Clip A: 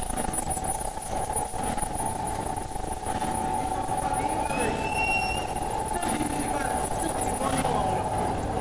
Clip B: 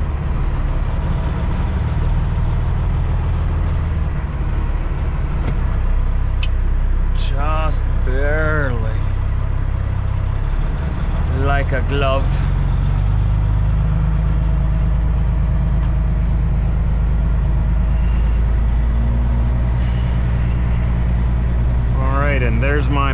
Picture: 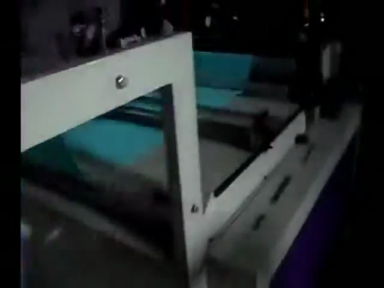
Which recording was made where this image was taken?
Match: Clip A